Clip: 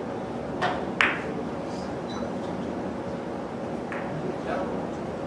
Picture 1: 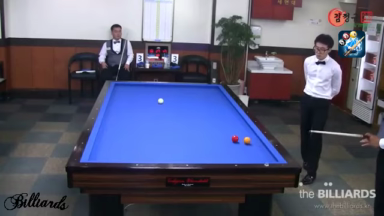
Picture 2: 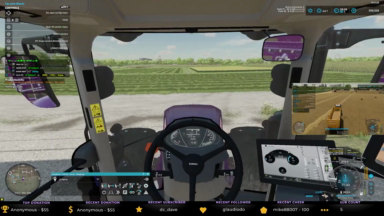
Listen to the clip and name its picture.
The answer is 1